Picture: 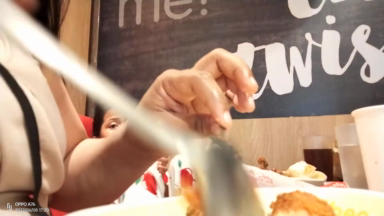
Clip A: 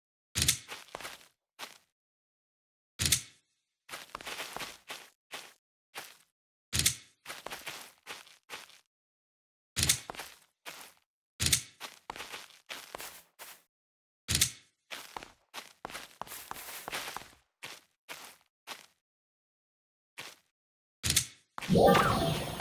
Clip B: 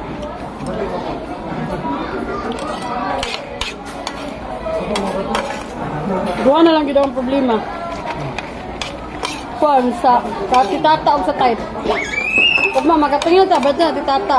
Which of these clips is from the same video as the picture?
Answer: B